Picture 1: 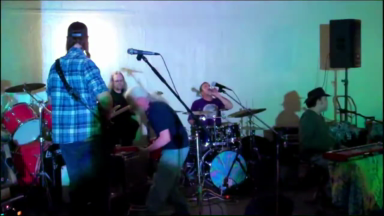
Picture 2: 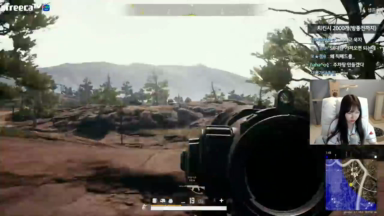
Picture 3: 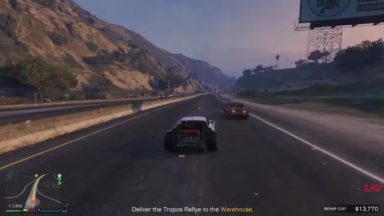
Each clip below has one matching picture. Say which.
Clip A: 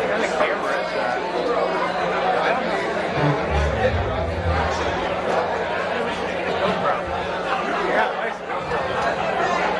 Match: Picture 1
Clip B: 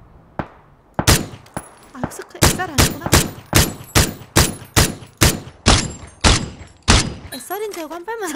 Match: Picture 2